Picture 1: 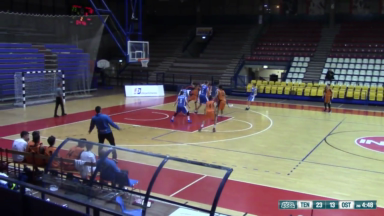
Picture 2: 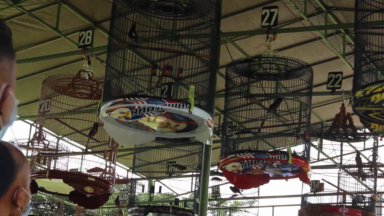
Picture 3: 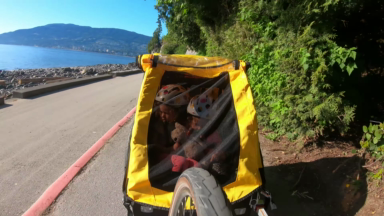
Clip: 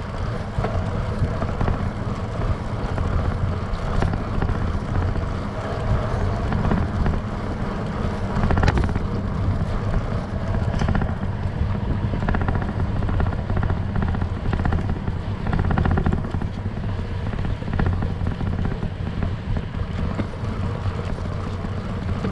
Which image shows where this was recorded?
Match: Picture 3